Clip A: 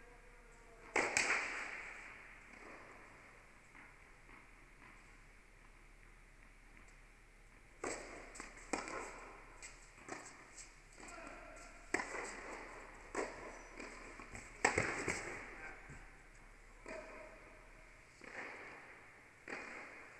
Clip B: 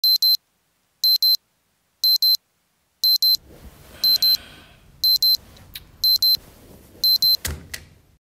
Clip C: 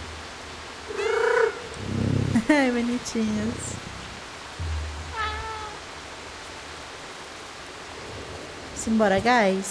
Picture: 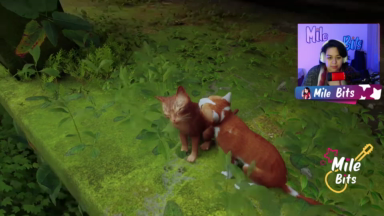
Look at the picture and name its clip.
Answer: C